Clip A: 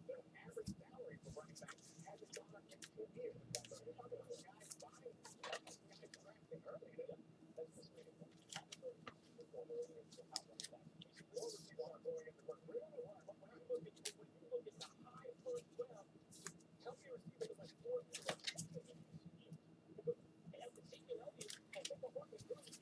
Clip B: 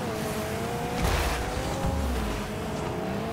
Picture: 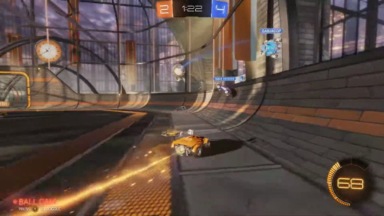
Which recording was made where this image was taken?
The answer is B